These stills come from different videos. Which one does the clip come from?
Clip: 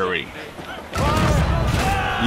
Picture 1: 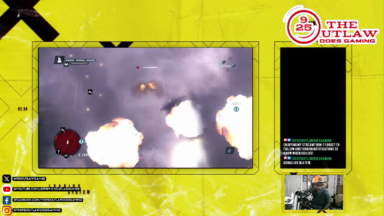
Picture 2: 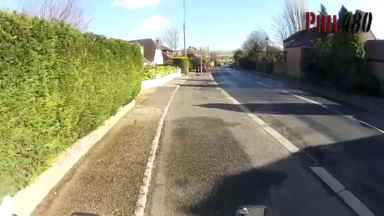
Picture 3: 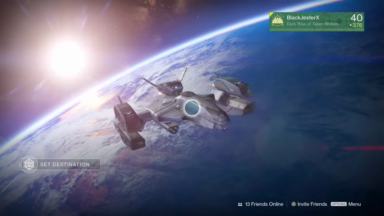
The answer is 1